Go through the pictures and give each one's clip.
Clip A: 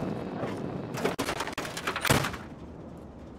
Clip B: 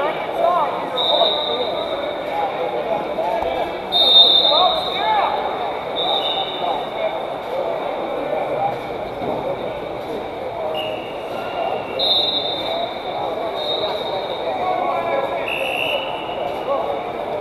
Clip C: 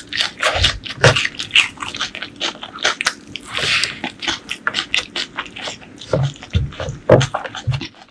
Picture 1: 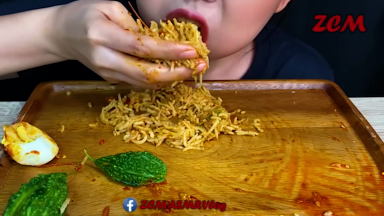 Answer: C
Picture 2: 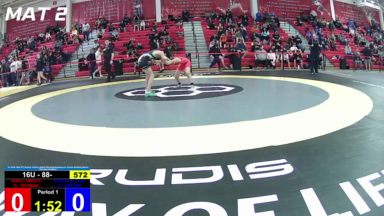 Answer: B